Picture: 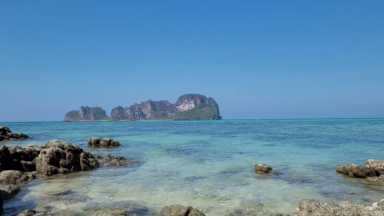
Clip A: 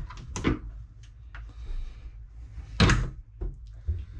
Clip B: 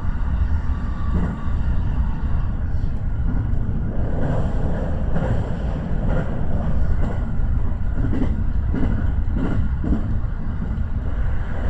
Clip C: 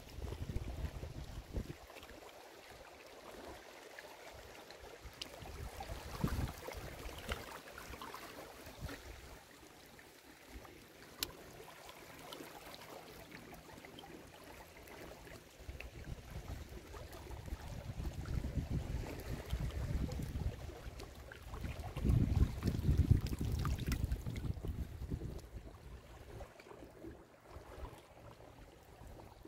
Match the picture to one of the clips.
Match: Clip C